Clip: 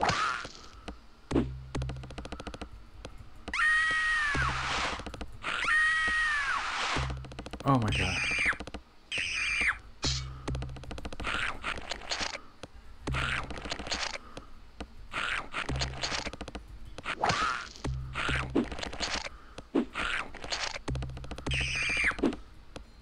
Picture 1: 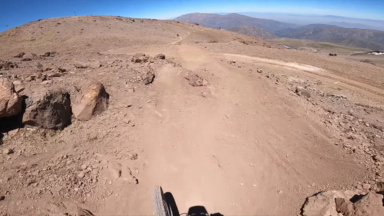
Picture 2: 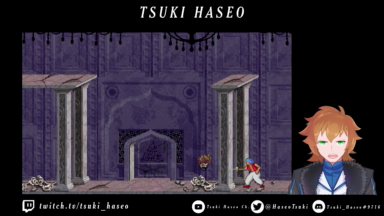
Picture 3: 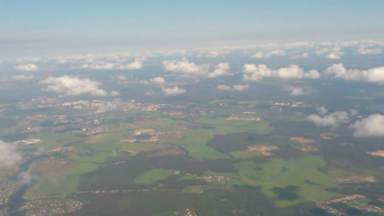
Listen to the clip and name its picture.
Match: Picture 2